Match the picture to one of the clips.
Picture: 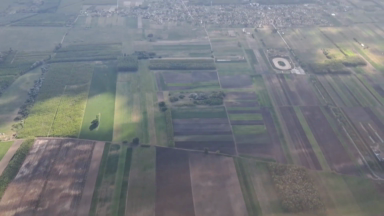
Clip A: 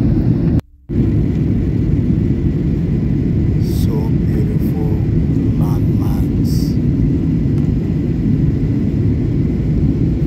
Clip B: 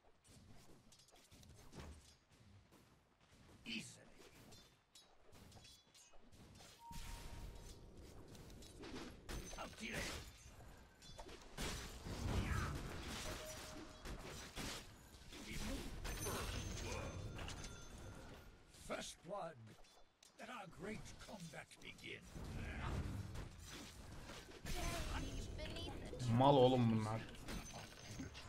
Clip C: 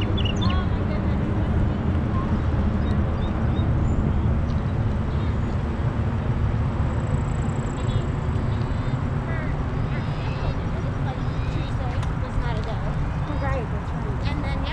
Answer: A